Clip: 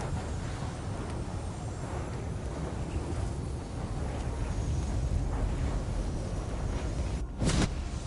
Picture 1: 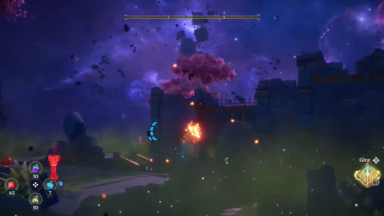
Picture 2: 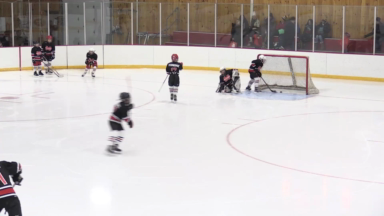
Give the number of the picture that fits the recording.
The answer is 1